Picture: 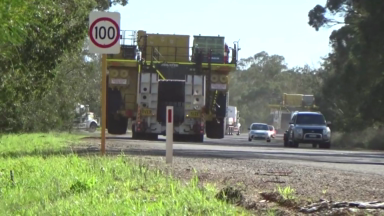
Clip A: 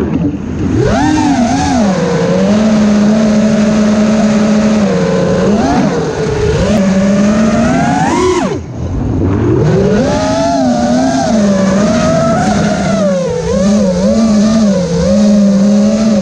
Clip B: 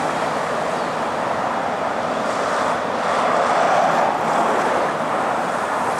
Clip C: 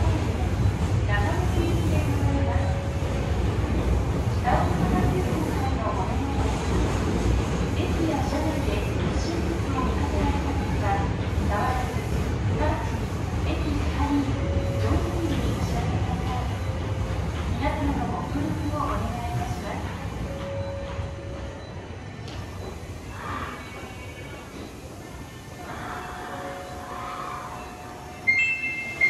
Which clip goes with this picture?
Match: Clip B